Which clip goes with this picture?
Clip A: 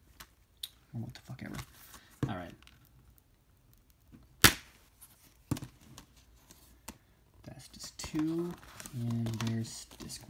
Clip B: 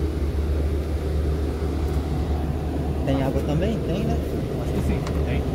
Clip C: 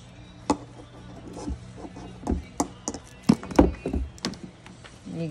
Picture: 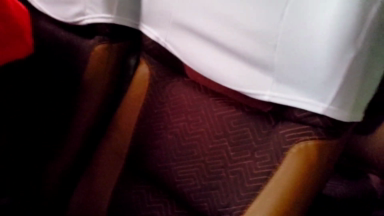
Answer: B